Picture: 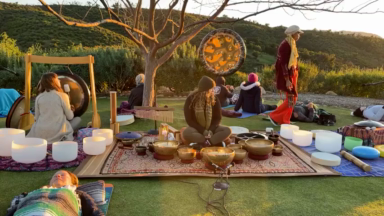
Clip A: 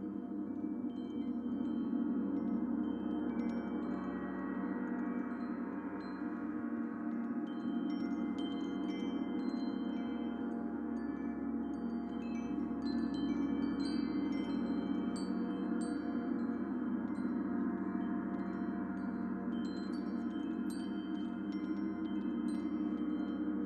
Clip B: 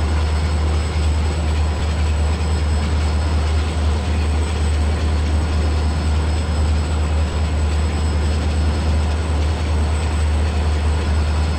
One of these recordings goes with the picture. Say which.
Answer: A